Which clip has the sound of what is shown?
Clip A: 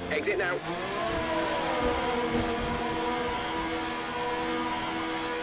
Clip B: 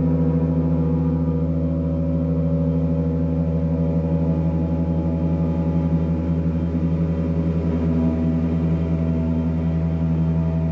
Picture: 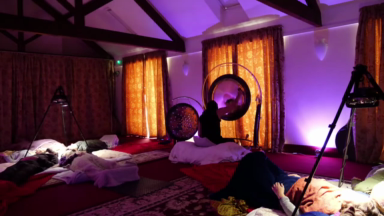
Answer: B